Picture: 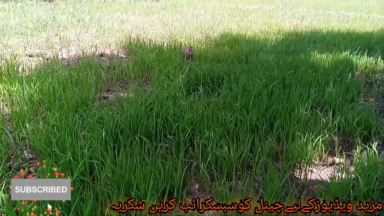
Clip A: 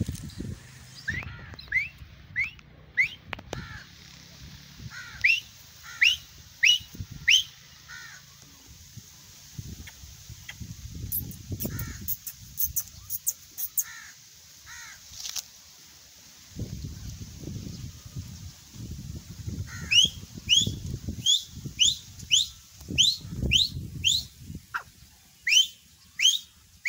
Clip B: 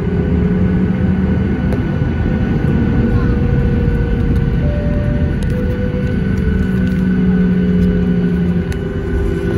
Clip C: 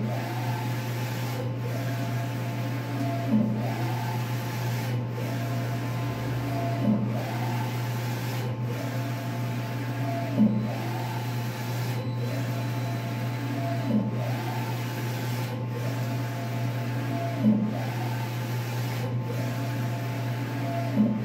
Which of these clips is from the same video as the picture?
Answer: A